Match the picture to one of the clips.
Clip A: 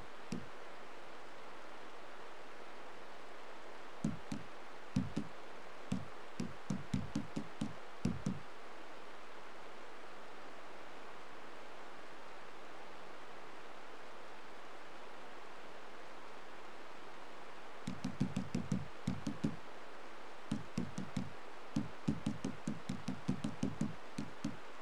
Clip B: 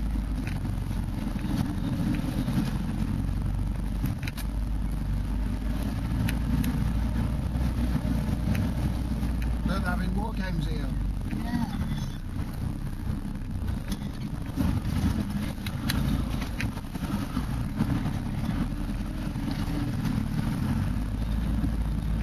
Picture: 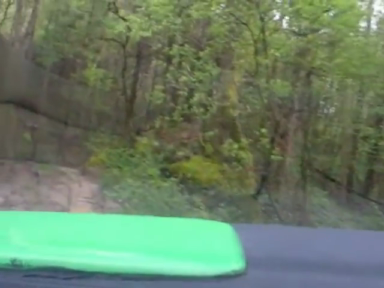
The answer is B